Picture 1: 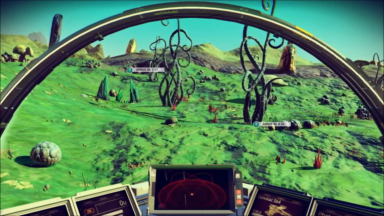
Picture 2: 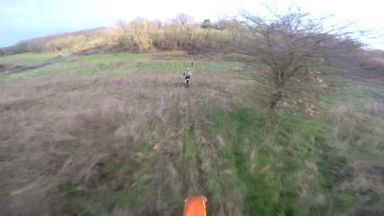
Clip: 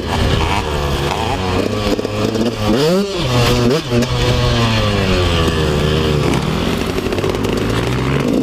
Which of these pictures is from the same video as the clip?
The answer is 2